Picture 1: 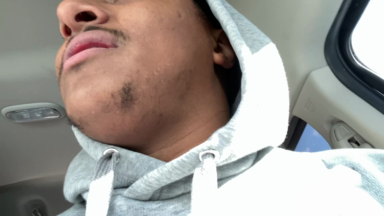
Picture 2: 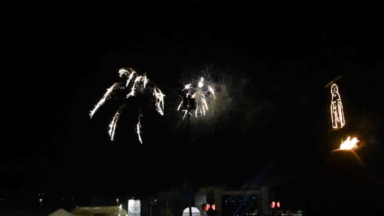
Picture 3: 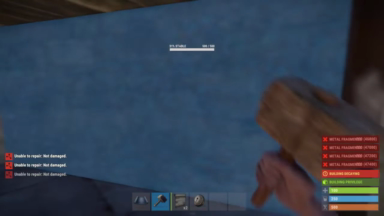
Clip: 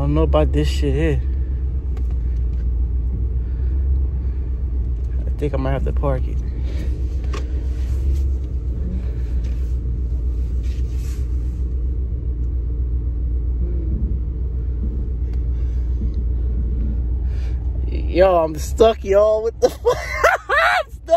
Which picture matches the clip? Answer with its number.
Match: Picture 1